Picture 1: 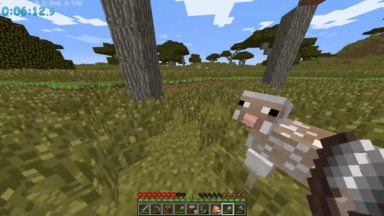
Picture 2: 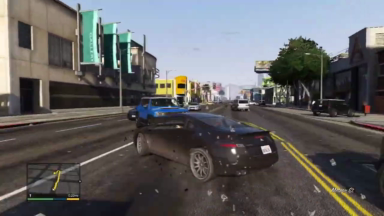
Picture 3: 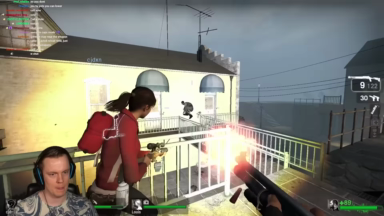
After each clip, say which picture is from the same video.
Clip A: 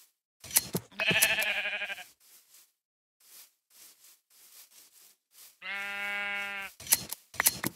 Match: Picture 1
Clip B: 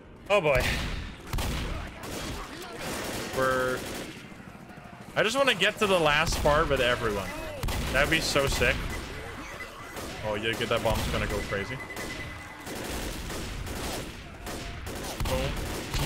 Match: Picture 3